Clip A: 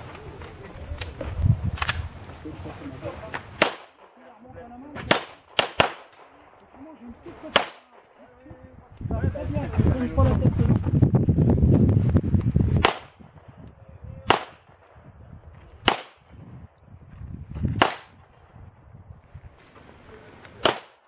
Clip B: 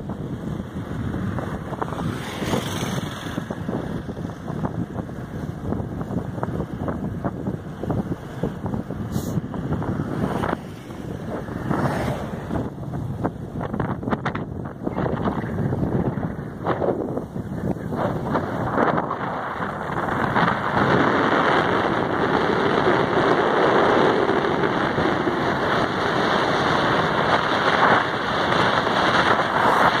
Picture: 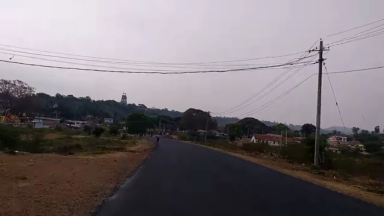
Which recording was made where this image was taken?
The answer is B